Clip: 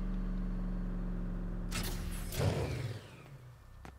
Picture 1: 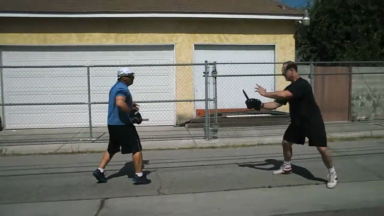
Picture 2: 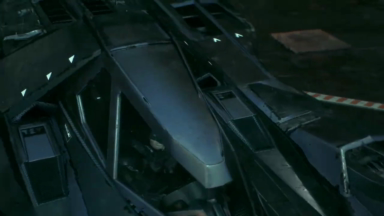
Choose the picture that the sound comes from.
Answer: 2